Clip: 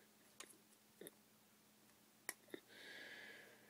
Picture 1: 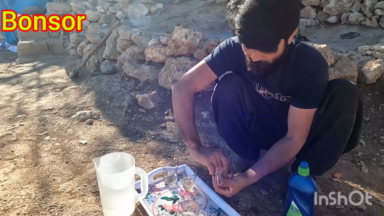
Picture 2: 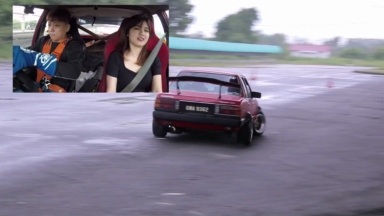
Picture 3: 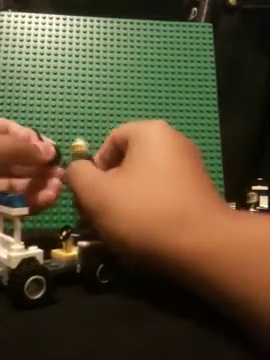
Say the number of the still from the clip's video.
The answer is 3